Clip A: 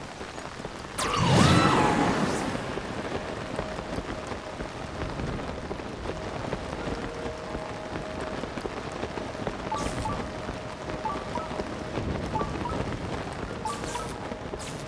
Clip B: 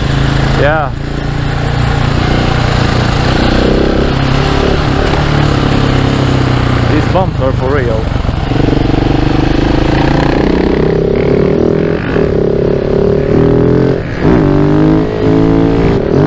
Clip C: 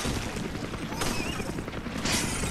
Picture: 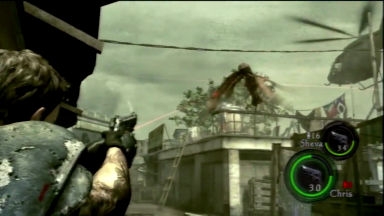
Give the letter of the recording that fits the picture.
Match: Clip C